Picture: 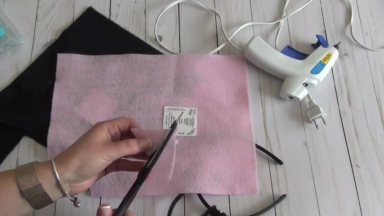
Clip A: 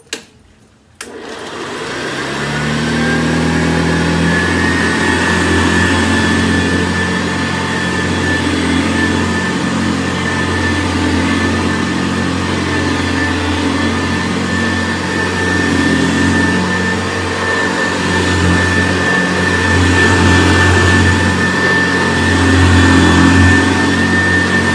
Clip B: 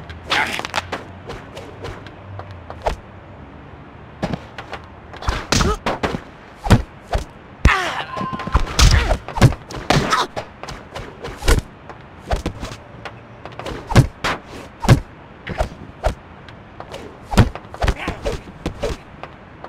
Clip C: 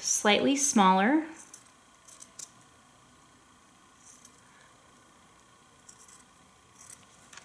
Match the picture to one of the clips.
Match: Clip C